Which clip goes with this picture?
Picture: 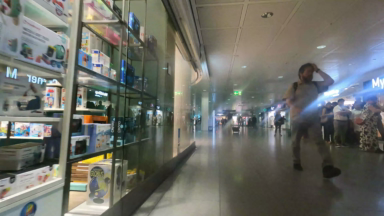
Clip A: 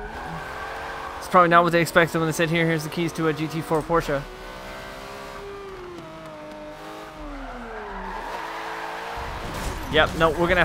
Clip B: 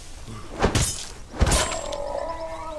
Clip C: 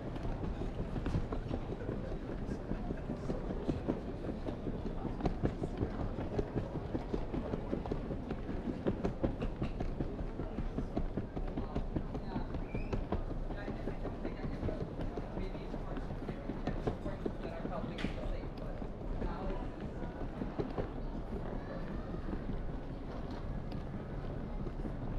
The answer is C